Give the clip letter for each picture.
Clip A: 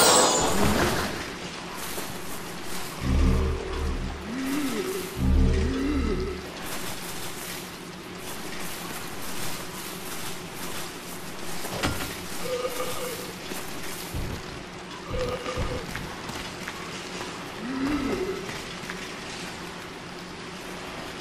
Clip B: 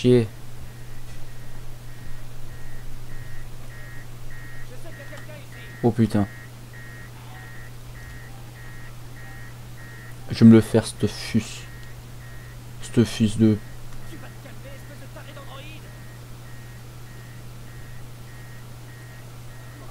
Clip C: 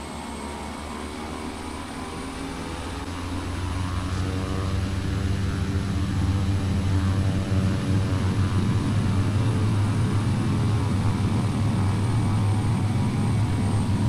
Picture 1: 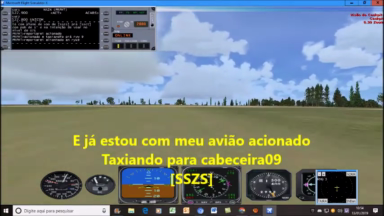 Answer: C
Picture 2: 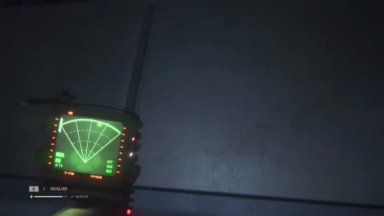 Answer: B